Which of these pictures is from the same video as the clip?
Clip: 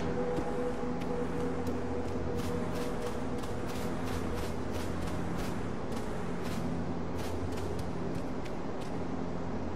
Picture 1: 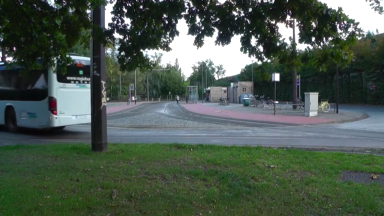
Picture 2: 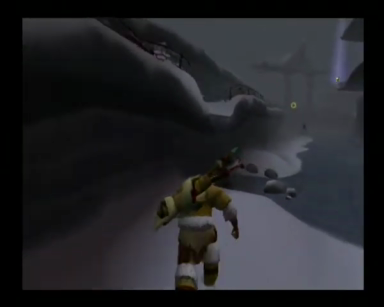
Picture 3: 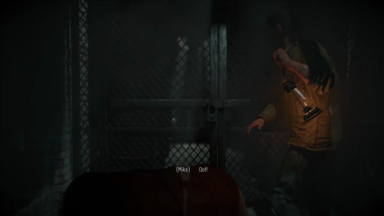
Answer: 2